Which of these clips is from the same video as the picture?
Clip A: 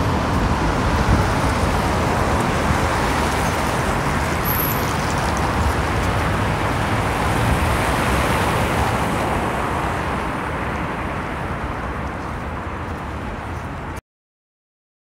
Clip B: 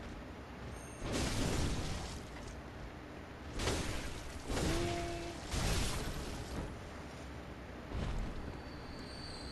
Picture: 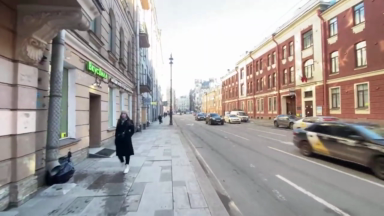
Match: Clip A